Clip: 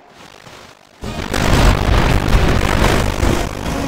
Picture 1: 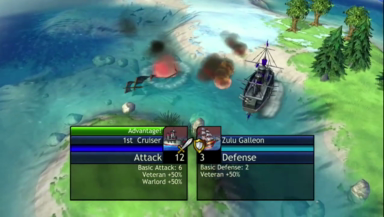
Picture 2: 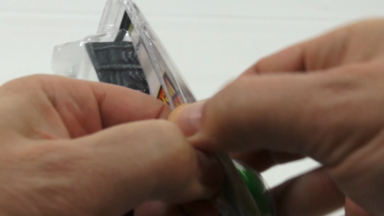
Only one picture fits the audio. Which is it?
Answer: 1